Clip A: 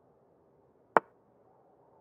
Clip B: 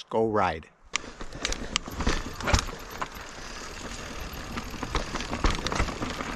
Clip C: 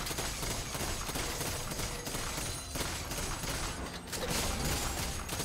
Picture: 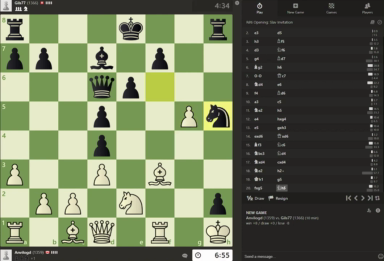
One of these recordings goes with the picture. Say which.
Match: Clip A